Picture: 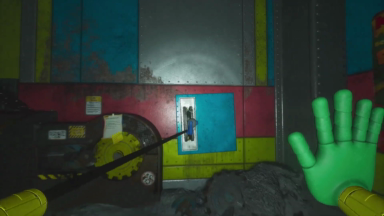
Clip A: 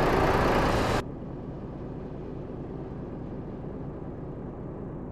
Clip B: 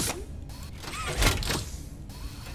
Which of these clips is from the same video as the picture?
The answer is B